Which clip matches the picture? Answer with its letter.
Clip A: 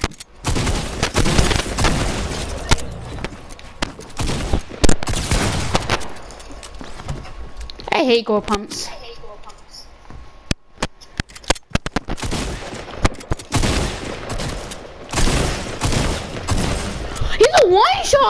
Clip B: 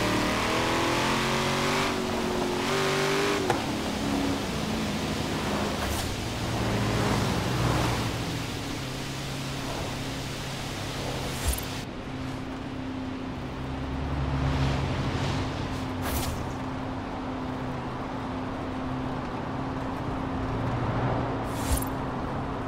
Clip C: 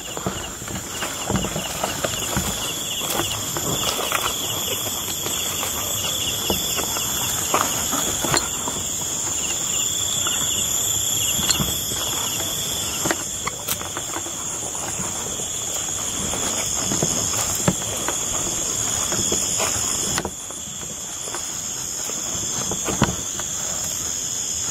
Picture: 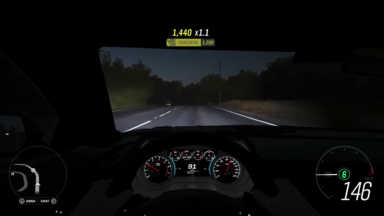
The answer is B